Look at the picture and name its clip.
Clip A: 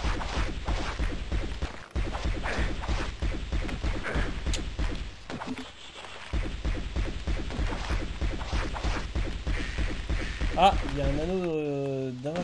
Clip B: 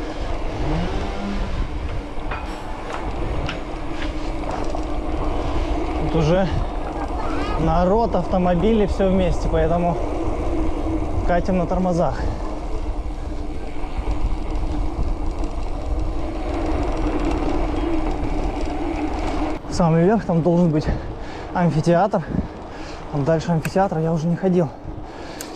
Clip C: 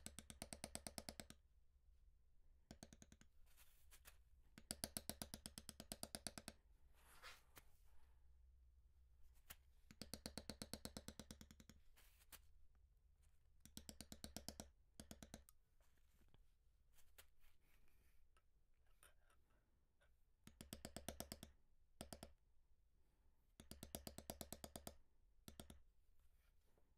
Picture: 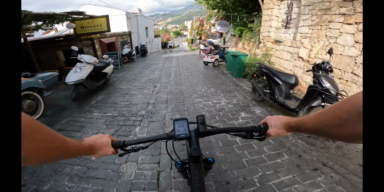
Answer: B